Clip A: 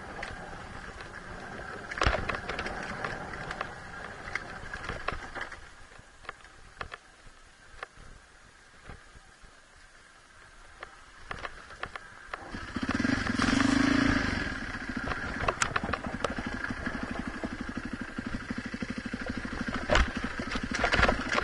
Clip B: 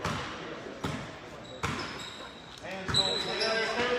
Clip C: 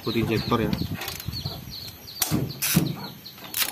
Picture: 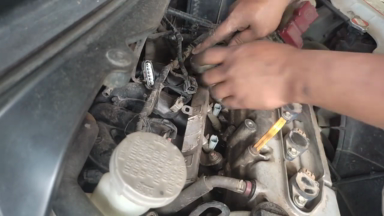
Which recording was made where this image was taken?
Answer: C